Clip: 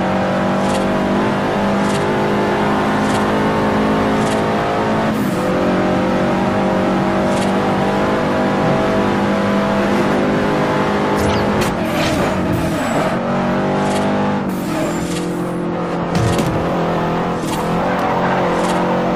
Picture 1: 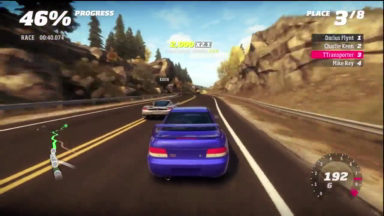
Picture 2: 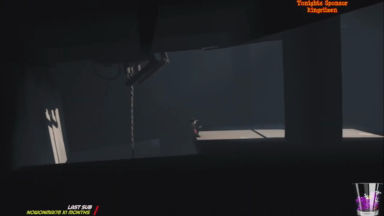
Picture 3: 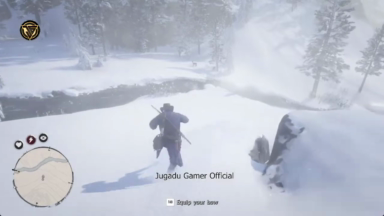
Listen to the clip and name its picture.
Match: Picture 1